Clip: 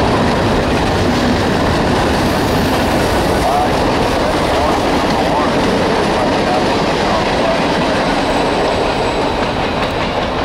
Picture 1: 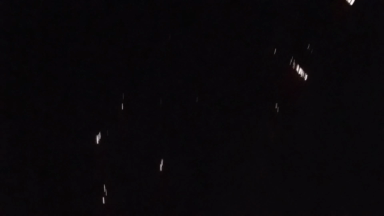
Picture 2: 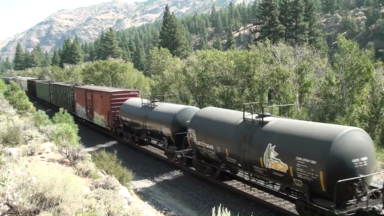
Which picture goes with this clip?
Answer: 2